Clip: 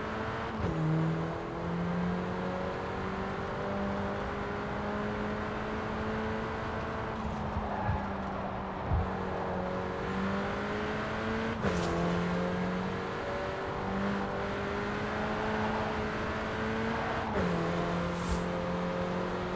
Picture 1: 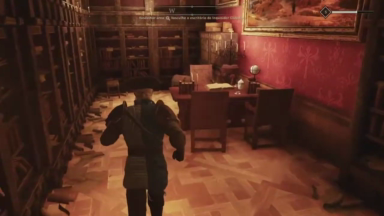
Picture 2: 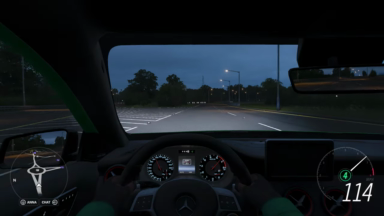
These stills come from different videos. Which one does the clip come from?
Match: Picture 2